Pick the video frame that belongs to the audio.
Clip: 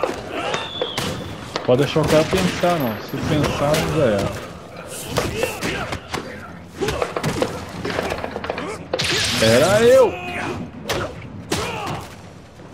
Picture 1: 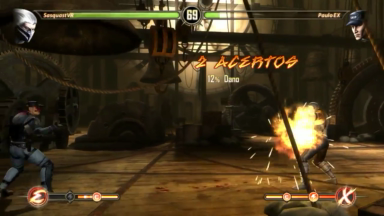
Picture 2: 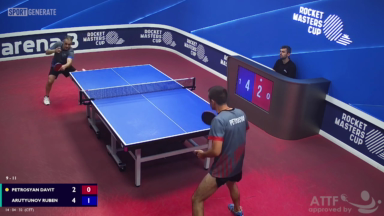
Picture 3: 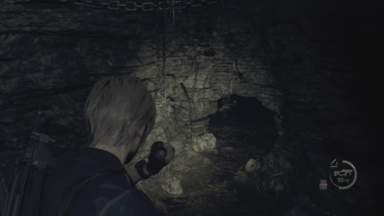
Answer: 1